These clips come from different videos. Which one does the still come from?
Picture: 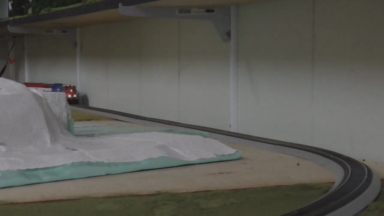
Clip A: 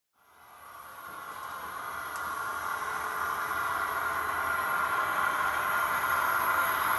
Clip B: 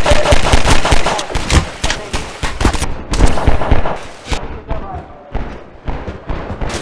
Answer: A